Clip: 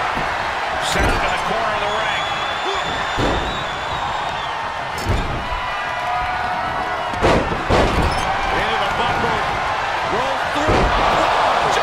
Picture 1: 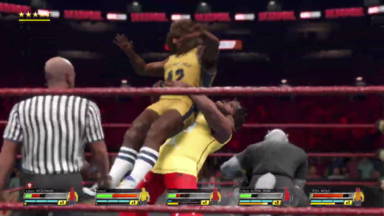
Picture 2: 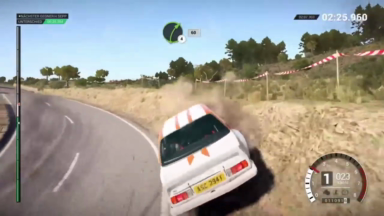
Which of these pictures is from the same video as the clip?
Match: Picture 1